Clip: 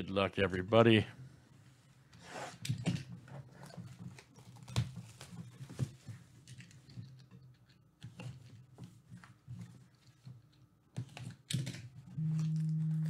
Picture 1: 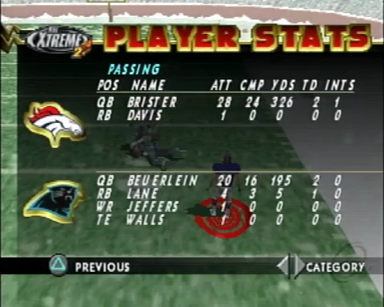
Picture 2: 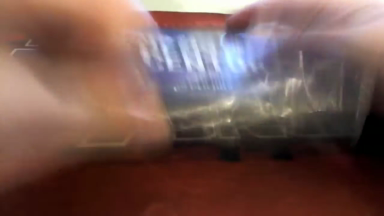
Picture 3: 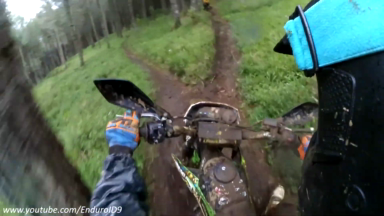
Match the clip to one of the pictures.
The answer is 2